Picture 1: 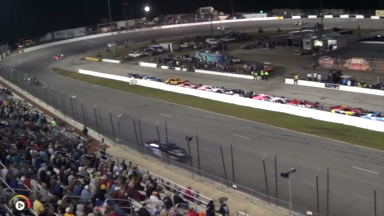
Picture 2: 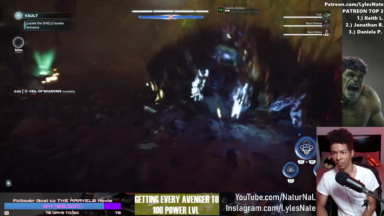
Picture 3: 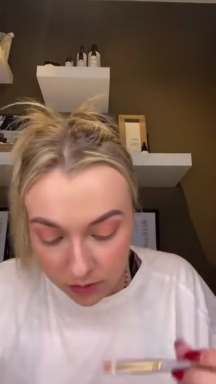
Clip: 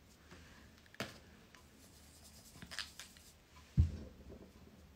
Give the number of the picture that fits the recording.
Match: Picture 3